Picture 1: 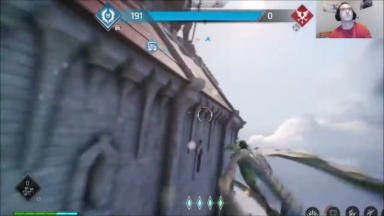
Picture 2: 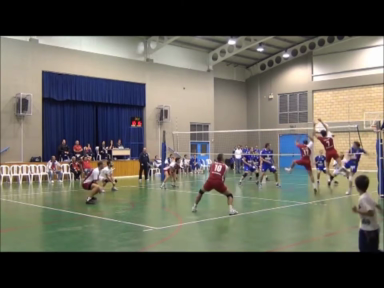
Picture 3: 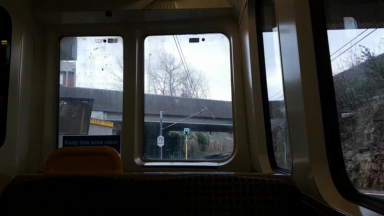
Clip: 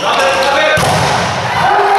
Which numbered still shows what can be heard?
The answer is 2